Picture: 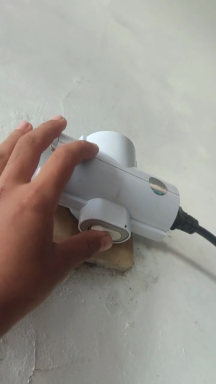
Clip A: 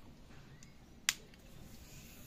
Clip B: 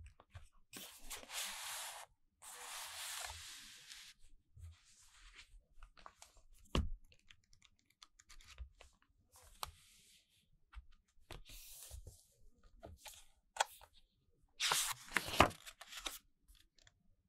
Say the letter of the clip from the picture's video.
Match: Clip A